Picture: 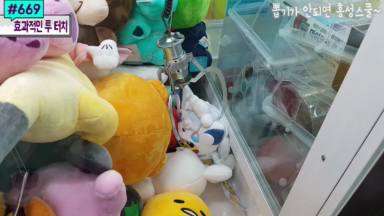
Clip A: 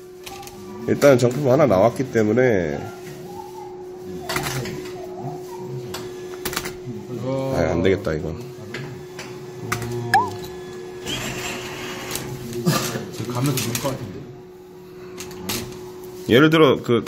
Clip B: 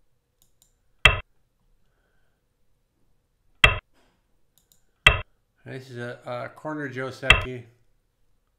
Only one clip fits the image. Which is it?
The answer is A